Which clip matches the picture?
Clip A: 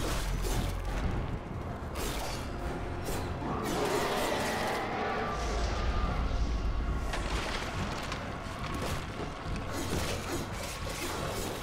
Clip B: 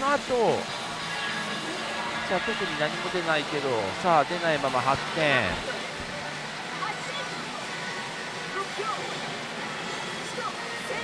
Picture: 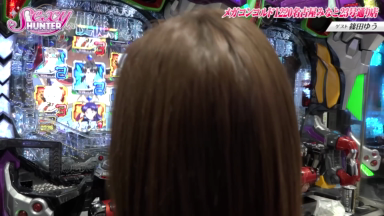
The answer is B